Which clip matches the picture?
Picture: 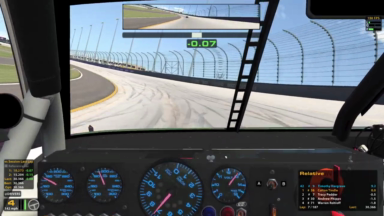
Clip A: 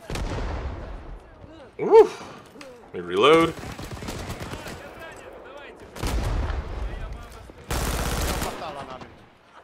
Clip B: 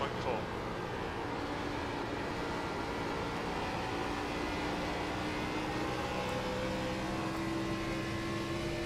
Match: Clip B